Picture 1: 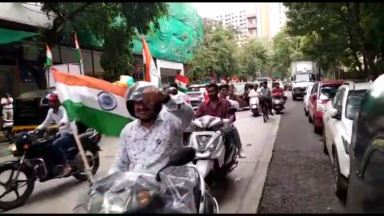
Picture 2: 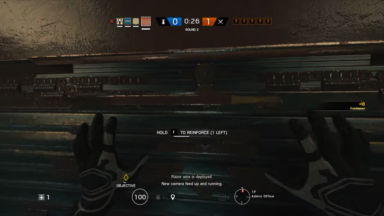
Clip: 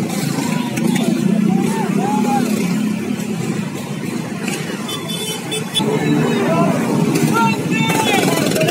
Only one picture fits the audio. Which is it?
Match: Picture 1